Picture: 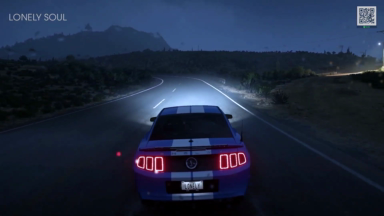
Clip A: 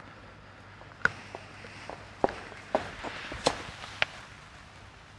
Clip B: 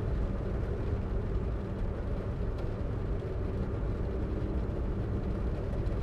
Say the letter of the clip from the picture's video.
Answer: B